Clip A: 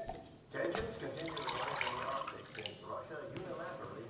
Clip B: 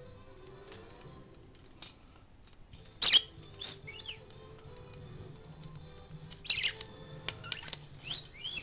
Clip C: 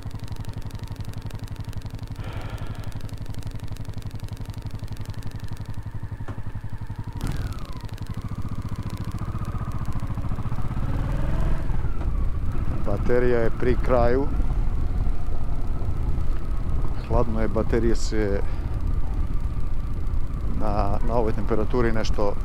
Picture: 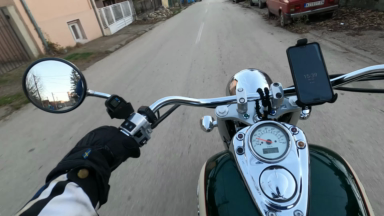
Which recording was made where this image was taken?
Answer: C